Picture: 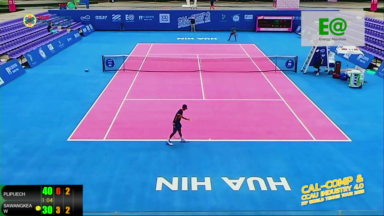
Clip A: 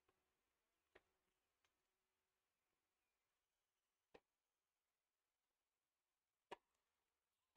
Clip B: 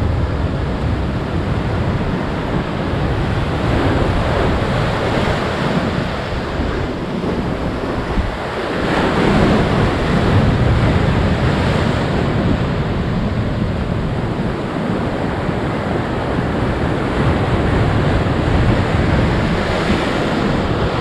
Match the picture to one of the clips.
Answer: A